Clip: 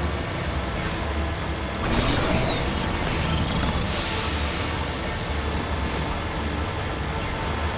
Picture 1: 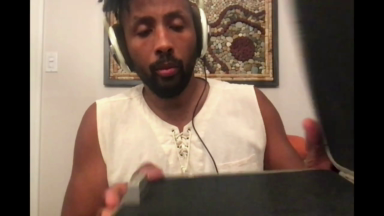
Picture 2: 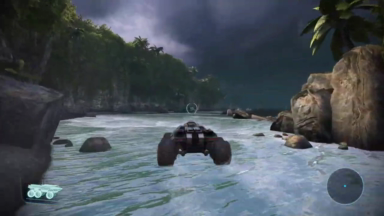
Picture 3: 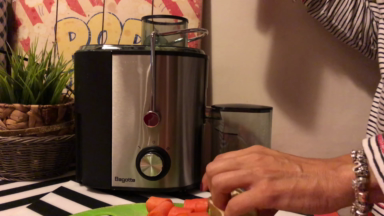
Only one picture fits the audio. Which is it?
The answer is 2